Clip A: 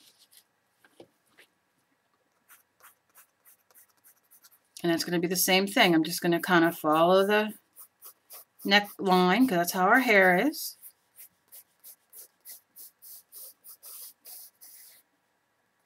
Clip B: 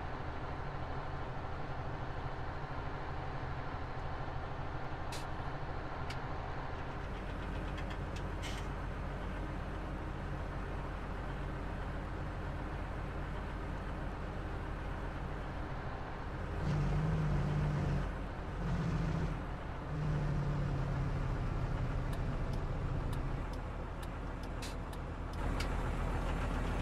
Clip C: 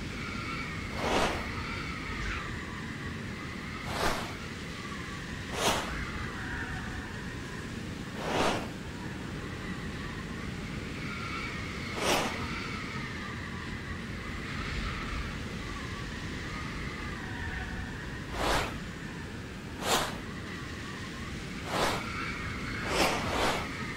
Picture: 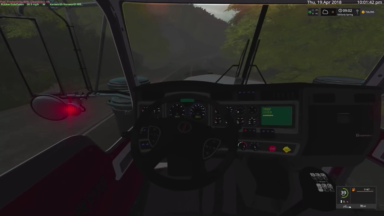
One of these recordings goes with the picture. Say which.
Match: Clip B